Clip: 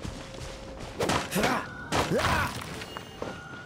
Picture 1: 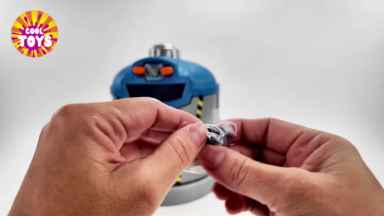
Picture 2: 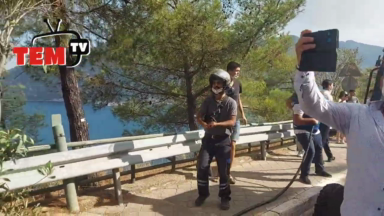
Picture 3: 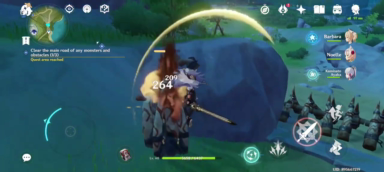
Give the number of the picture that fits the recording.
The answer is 3